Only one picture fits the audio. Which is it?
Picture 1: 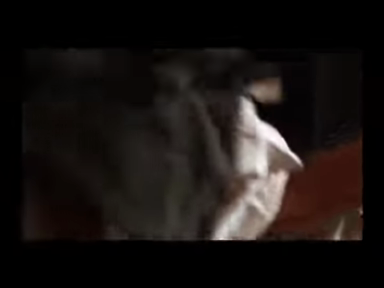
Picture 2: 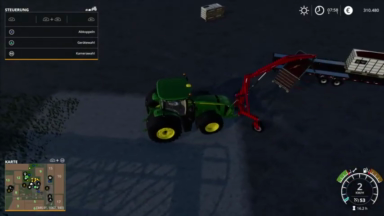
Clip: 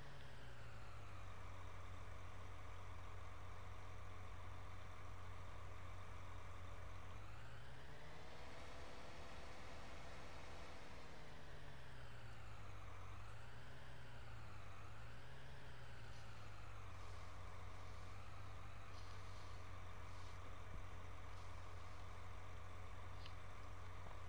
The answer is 2